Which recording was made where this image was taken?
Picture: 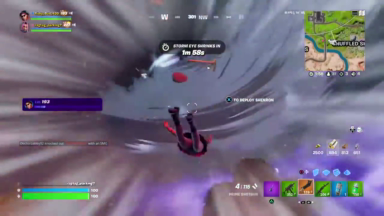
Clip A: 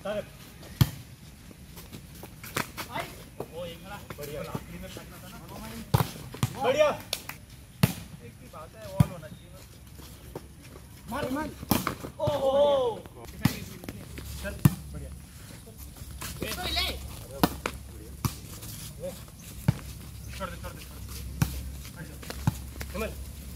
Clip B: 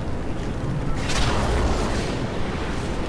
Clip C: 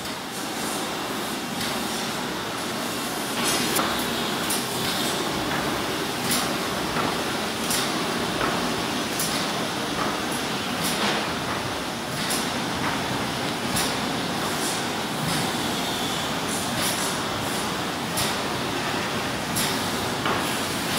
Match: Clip B